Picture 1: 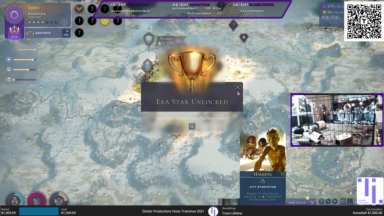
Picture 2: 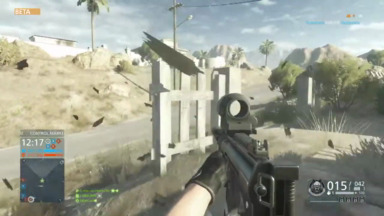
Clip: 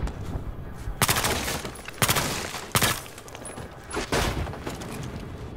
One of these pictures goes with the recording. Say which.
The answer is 2